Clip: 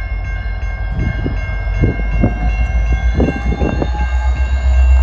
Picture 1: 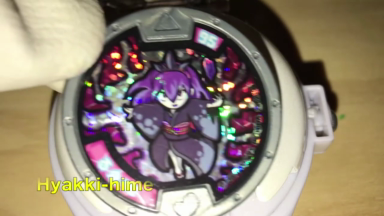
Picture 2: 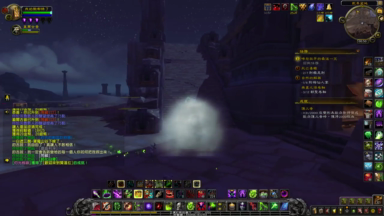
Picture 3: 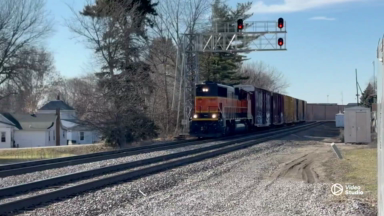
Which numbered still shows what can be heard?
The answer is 3